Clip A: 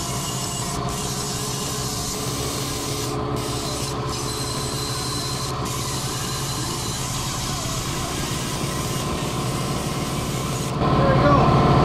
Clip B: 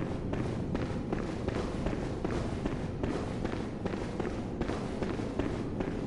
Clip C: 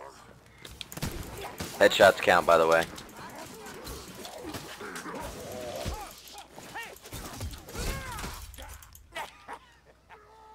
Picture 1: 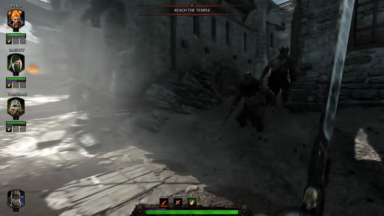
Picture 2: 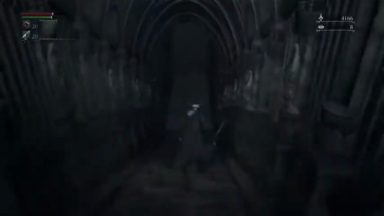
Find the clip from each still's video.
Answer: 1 C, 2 B